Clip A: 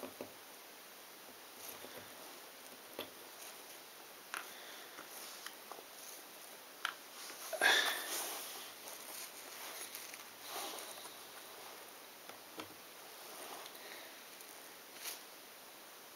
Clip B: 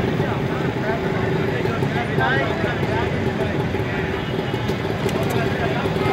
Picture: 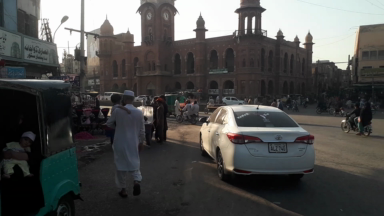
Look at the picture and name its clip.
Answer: B